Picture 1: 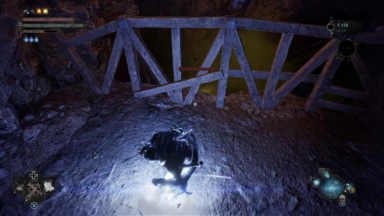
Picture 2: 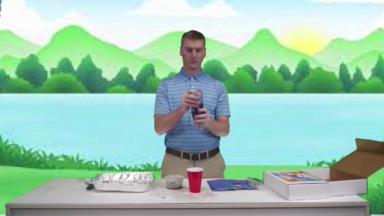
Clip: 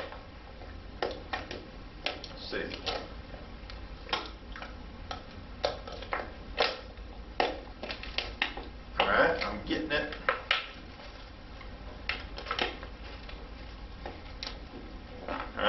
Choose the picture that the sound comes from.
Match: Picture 2